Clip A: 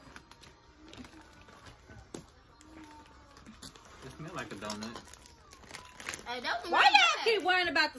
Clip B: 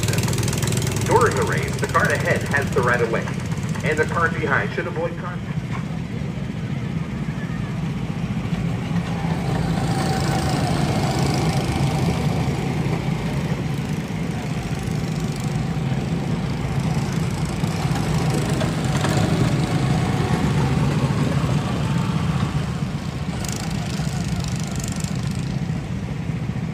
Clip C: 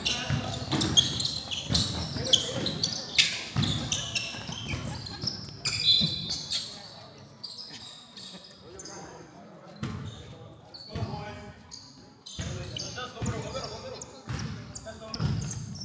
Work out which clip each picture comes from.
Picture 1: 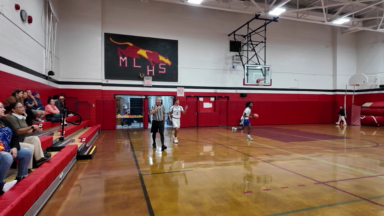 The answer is C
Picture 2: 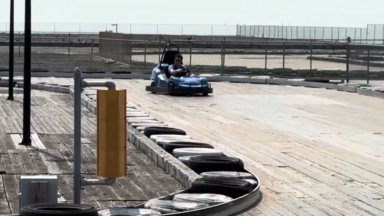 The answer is B